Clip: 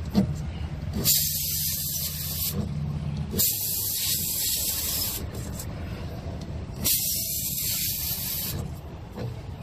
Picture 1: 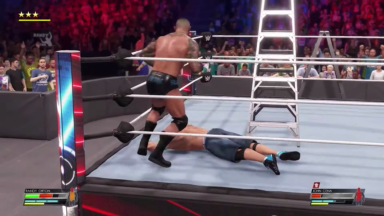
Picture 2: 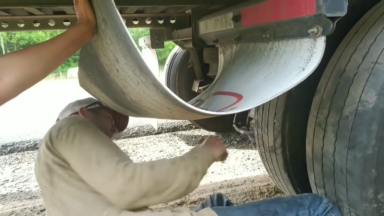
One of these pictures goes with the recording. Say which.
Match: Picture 2